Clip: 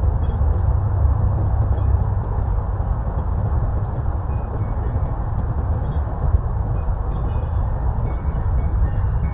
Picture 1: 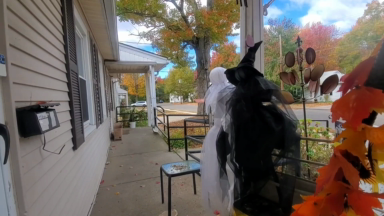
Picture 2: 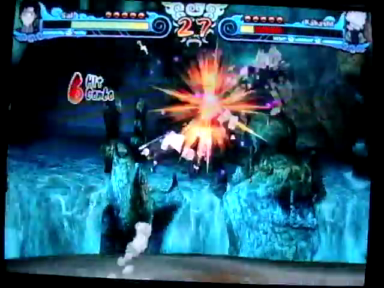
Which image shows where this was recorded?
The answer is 1